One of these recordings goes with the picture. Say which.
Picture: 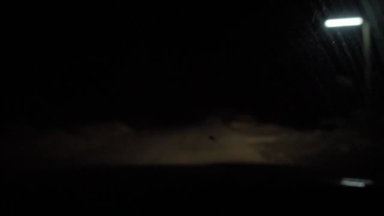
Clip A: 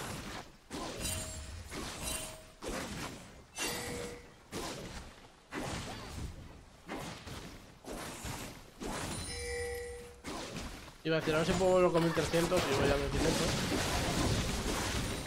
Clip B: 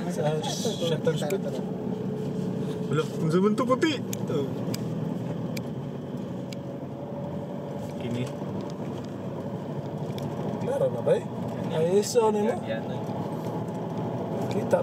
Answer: B